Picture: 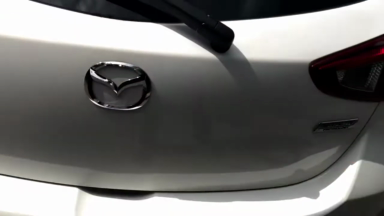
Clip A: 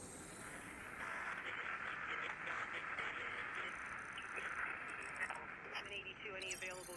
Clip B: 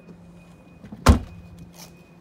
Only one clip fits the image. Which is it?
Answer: B